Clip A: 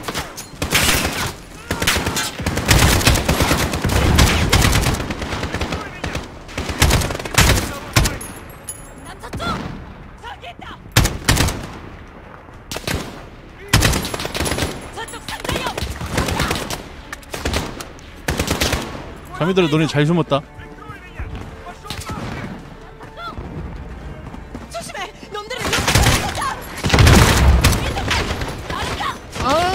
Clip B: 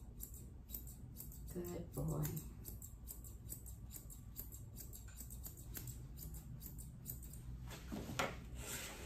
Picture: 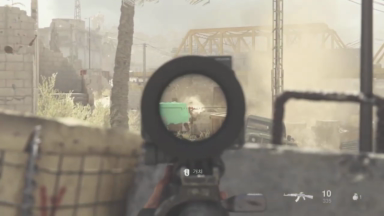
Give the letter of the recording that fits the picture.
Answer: A